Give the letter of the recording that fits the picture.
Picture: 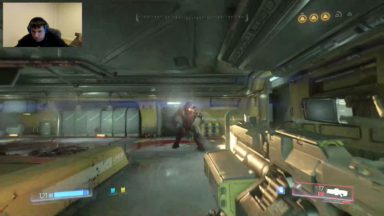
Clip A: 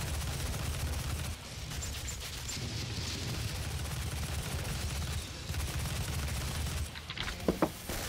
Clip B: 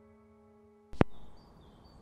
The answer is A